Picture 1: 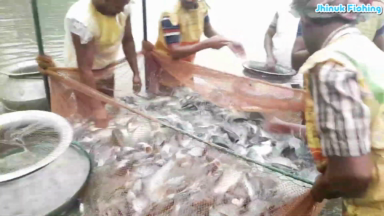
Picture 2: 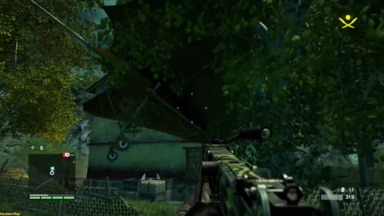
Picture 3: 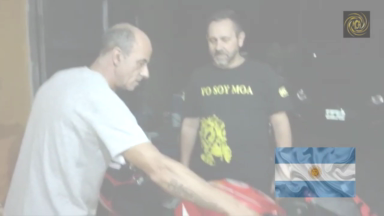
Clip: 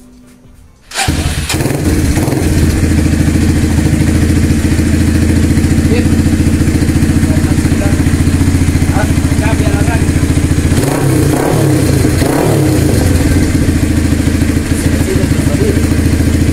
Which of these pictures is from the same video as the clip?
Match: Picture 3